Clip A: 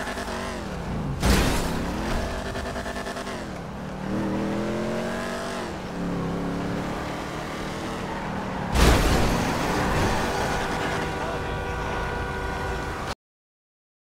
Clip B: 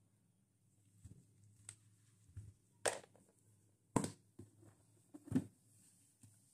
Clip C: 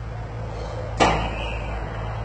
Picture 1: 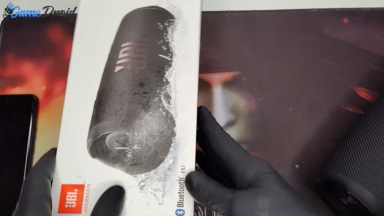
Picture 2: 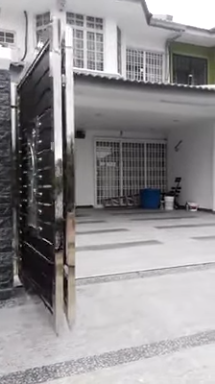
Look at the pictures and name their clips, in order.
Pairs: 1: B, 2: C